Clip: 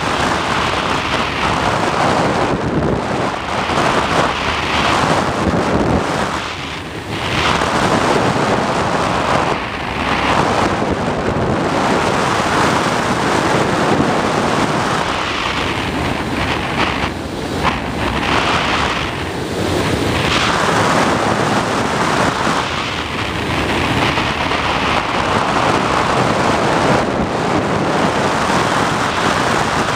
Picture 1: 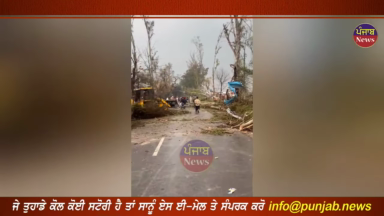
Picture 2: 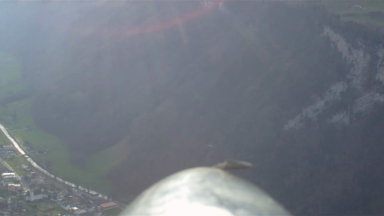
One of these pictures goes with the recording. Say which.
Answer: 2